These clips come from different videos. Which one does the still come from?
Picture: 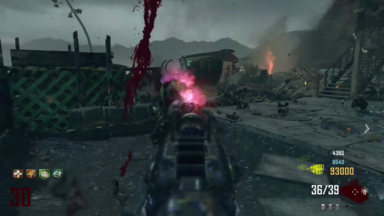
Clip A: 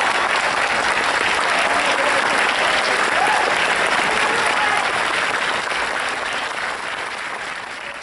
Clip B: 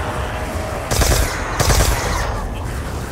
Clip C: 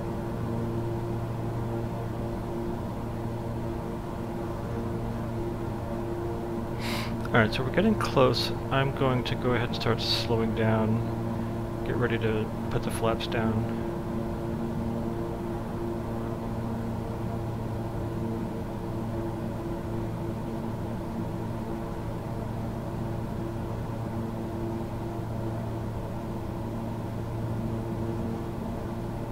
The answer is B